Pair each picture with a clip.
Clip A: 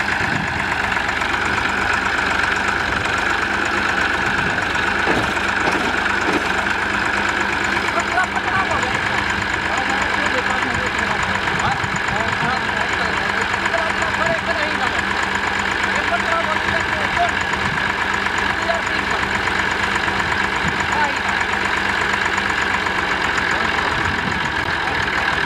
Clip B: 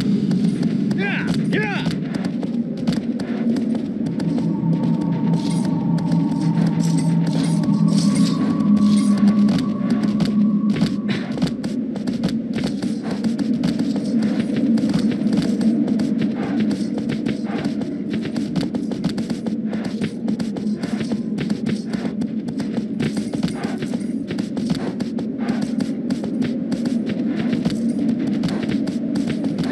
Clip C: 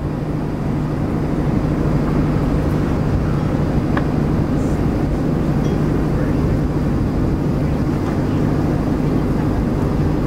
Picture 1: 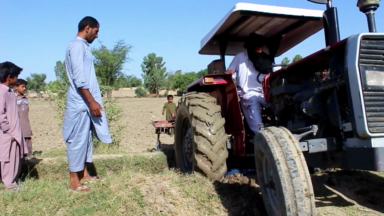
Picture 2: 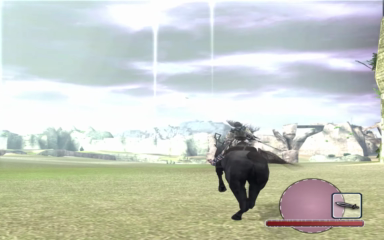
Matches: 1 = A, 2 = B